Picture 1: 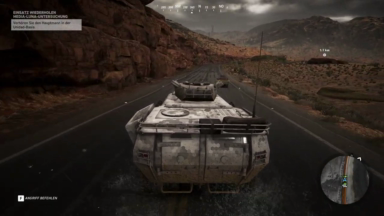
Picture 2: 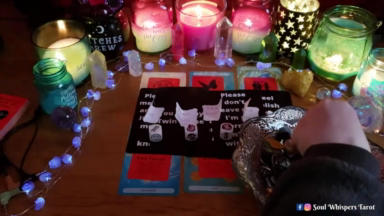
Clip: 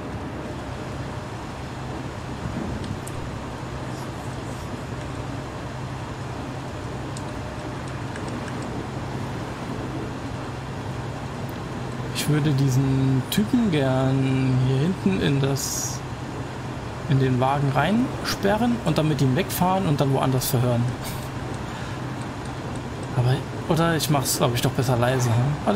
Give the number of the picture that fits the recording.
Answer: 1